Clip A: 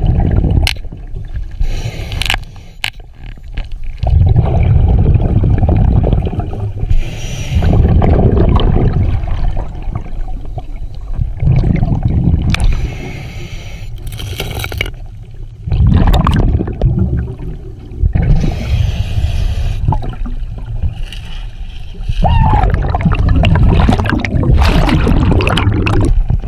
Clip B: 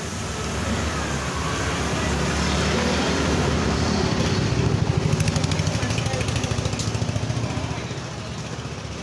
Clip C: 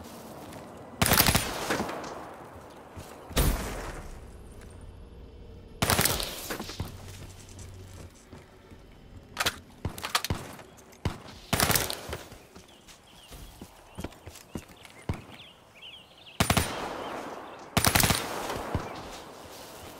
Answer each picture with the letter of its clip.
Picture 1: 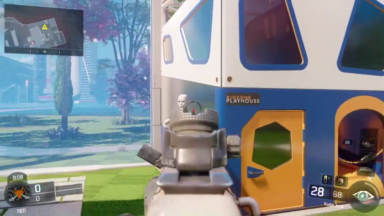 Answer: C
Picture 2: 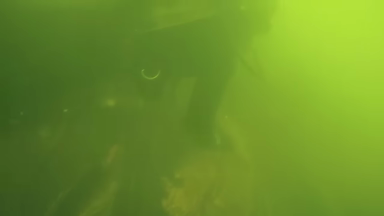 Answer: A